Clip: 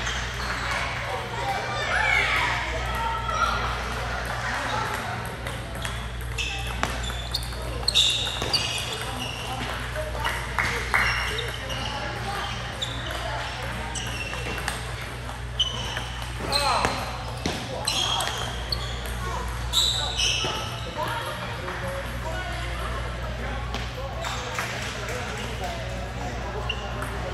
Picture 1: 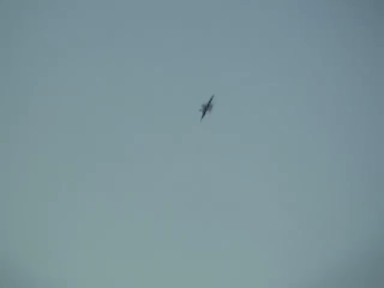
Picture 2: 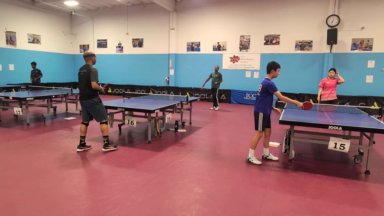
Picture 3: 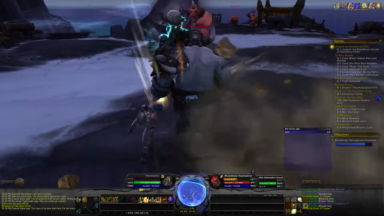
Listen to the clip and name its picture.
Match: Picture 2